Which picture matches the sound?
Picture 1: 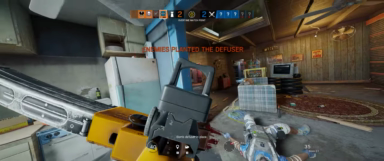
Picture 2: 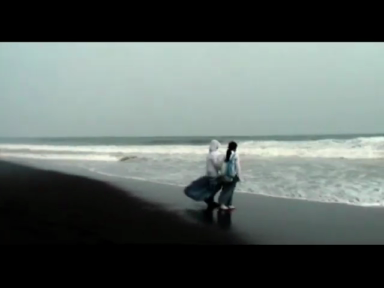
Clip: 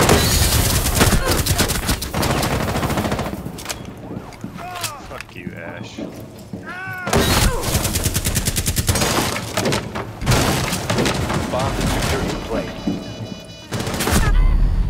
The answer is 1